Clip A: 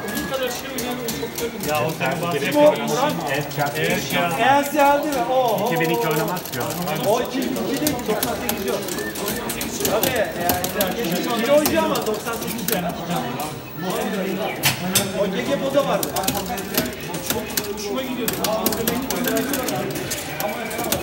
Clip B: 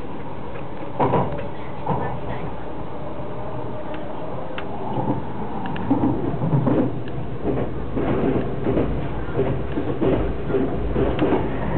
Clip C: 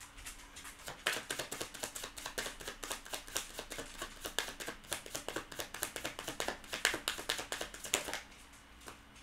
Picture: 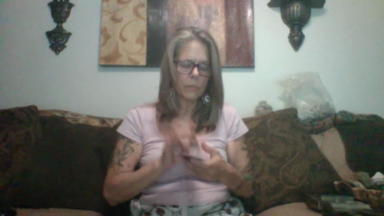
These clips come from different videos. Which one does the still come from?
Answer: C